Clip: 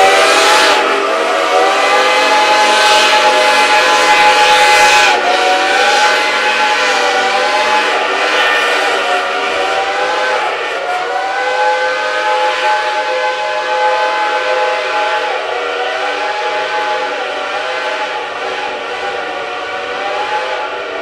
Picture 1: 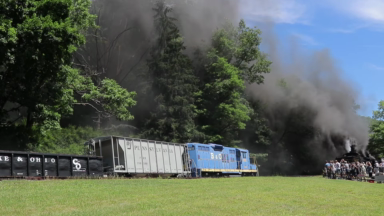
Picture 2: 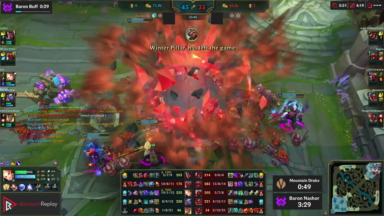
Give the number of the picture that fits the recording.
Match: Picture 1